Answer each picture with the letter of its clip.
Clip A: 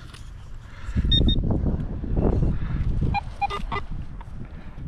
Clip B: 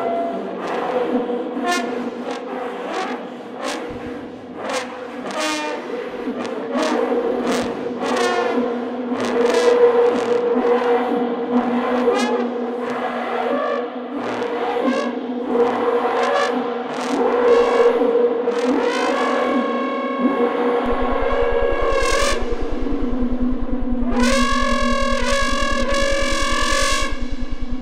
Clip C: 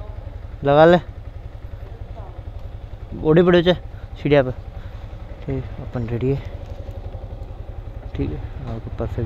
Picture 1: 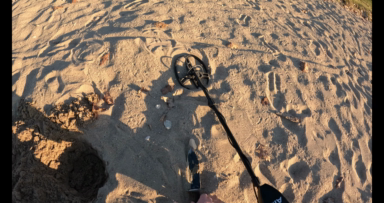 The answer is A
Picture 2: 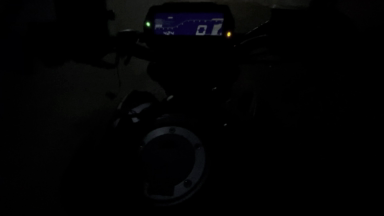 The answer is C